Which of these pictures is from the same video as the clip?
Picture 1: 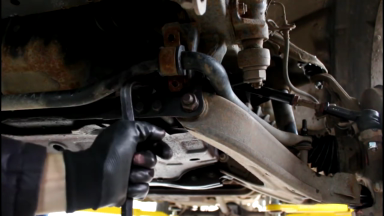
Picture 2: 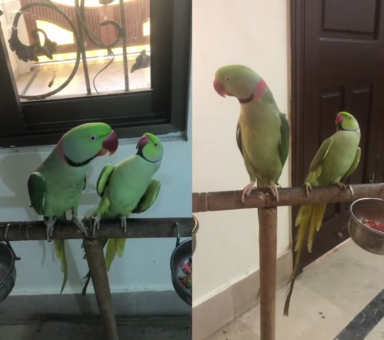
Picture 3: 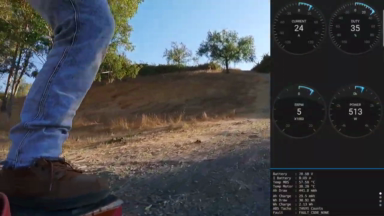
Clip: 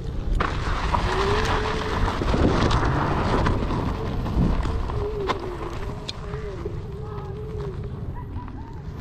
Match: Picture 3